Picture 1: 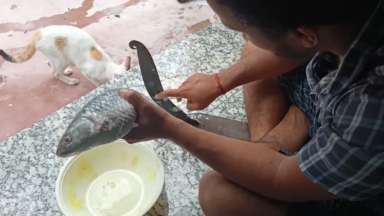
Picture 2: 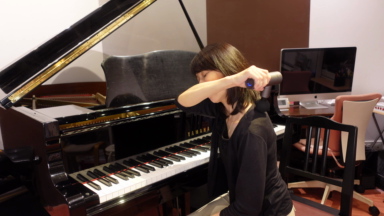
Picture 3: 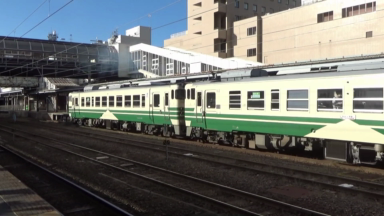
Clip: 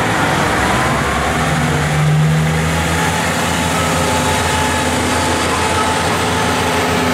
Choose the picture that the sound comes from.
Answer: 3